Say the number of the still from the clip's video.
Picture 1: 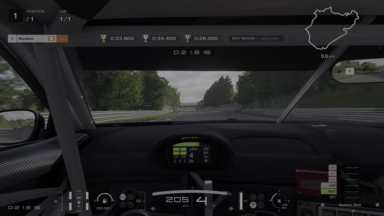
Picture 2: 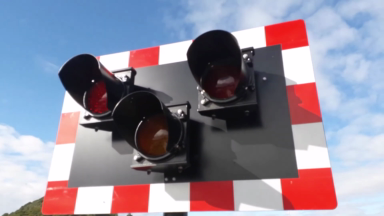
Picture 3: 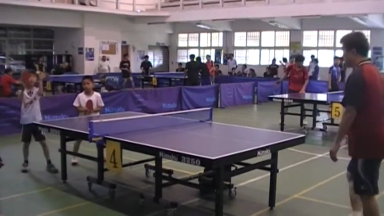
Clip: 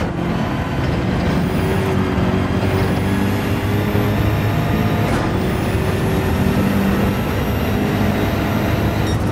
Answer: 1